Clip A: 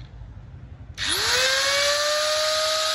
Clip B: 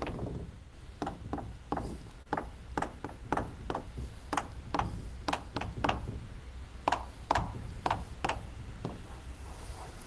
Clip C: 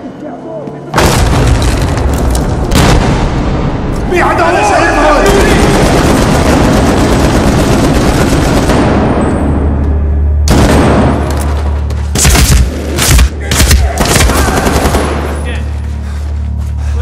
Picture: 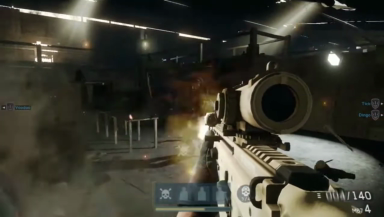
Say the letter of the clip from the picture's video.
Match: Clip C